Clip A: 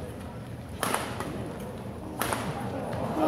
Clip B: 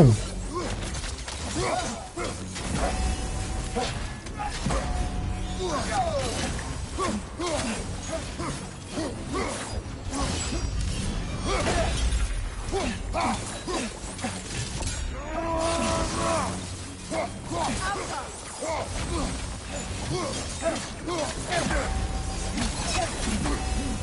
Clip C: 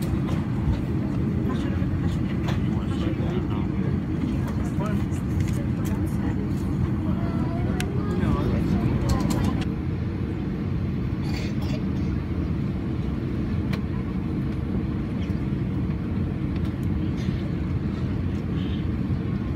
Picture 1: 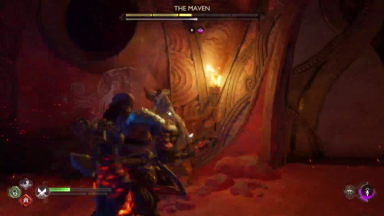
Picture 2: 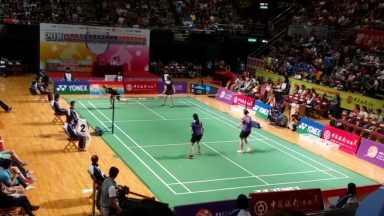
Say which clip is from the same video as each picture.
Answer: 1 B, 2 A